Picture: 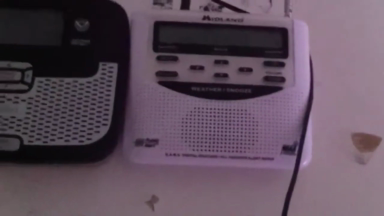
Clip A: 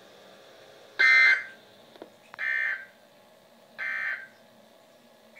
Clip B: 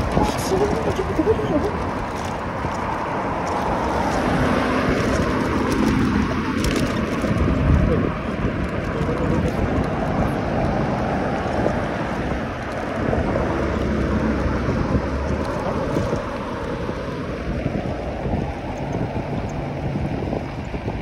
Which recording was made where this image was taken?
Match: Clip A